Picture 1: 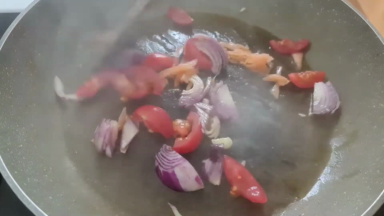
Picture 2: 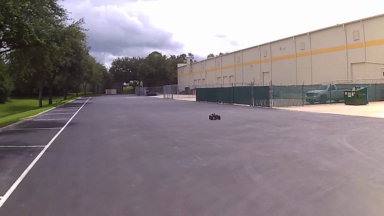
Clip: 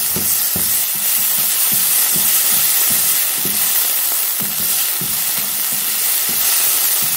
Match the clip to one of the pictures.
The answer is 1